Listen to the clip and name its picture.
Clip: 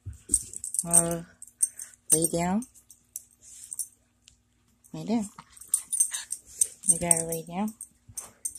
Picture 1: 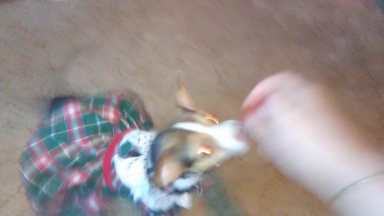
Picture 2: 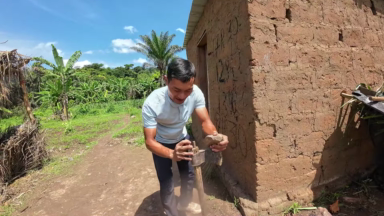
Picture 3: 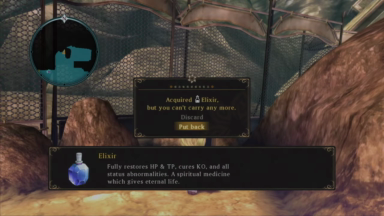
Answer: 1